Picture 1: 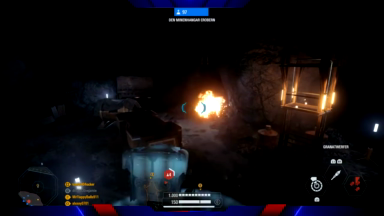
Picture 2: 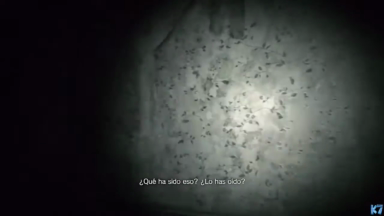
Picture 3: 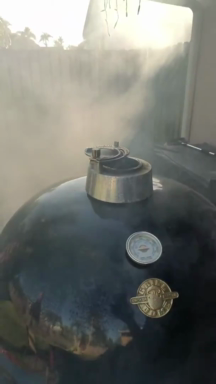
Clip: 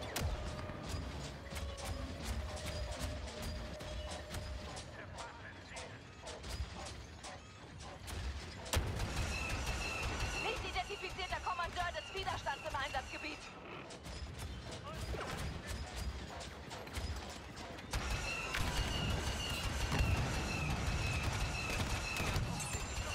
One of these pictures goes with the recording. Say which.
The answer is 1